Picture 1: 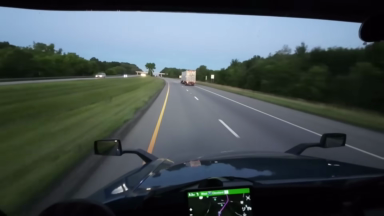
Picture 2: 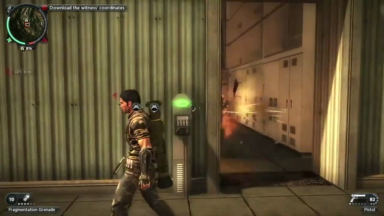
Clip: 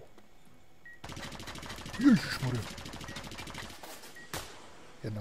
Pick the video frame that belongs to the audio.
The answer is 2